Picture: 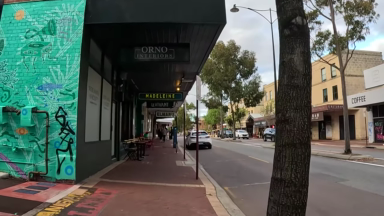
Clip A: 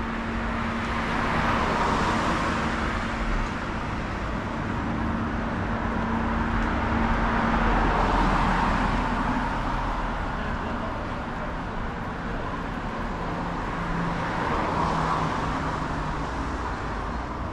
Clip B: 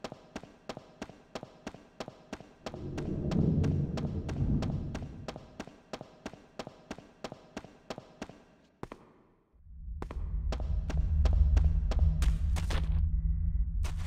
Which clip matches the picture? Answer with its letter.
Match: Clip A